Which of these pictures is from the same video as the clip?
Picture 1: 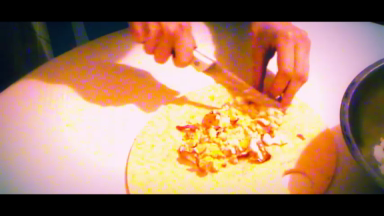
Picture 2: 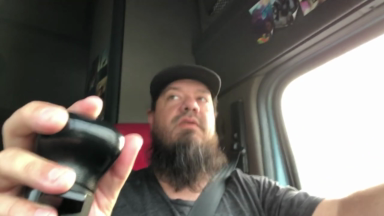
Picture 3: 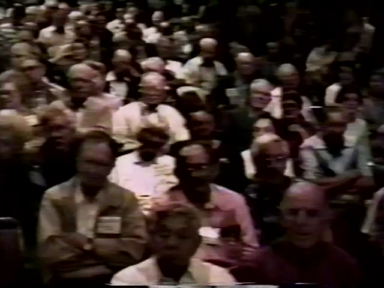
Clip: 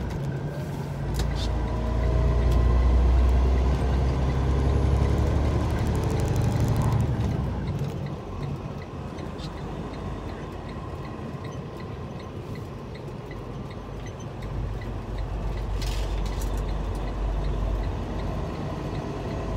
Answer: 2